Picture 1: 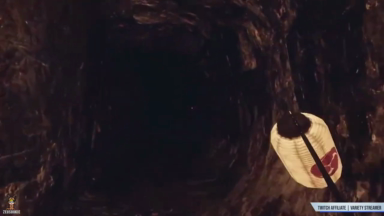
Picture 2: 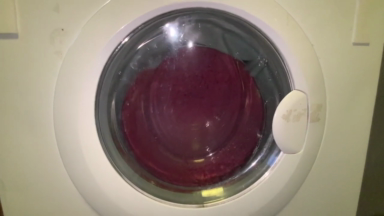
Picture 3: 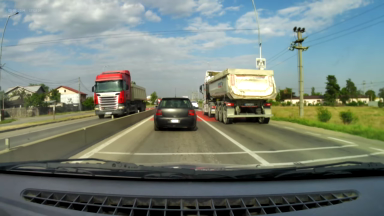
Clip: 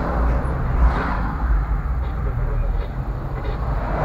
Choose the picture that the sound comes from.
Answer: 3